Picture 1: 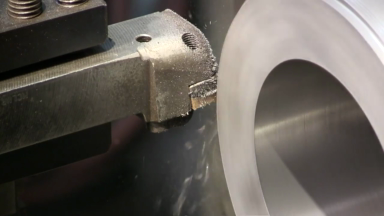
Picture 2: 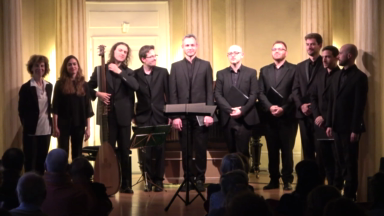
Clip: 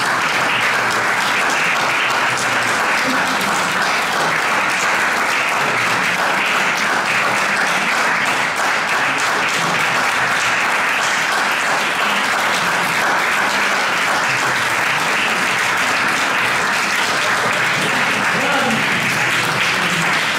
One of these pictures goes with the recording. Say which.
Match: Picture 2